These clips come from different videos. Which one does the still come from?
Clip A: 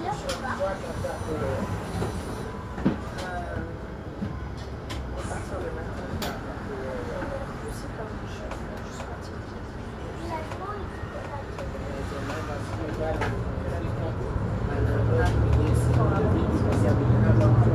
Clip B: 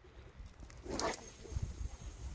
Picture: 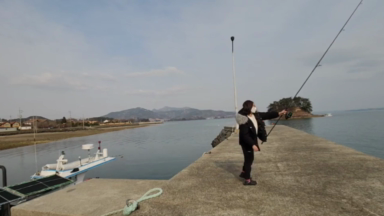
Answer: B